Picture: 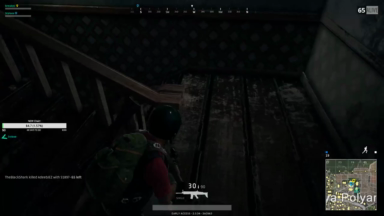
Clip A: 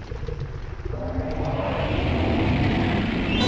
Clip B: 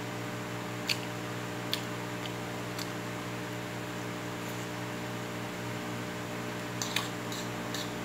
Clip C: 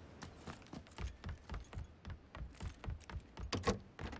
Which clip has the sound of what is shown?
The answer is C